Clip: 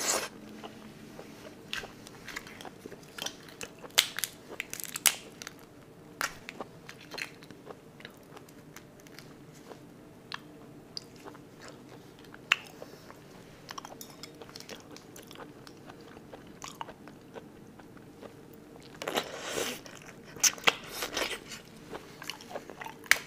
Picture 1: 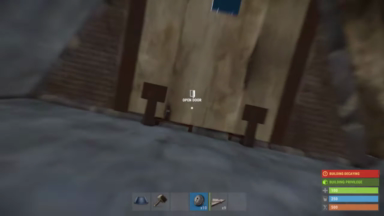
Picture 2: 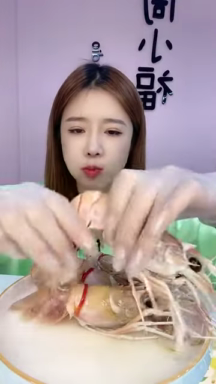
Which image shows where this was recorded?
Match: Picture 2